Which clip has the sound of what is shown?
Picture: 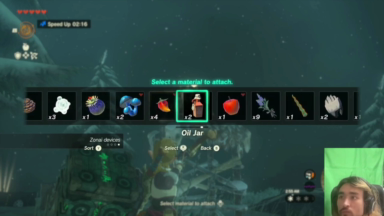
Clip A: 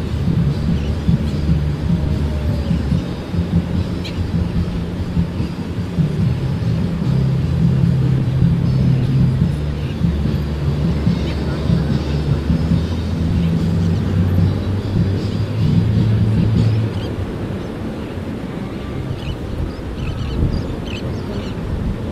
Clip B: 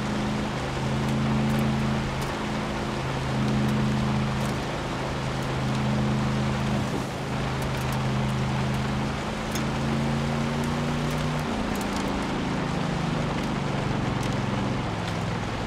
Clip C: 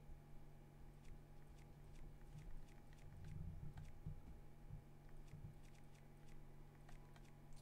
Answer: C